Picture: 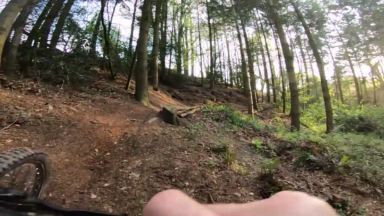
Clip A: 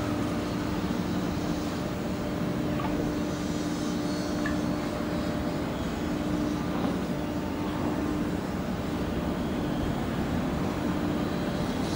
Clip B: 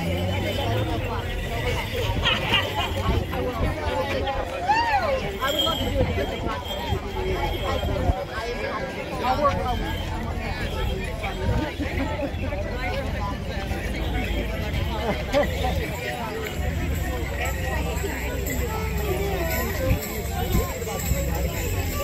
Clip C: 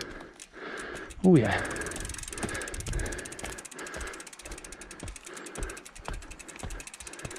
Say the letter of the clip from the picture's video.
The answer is C